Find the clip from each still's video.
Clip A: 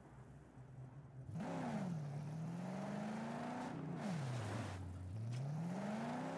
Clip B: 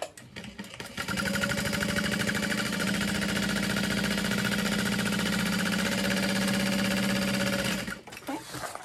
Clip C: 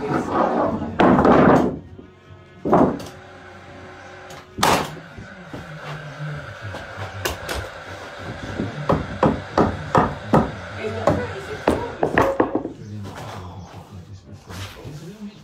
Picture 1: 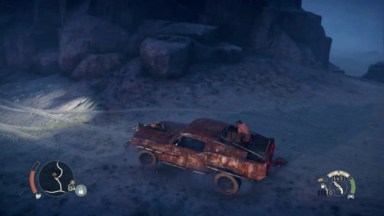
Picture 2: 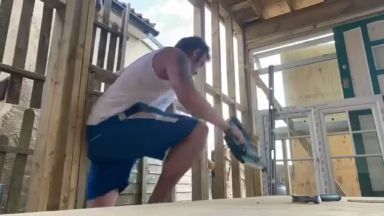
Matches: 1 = A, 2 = C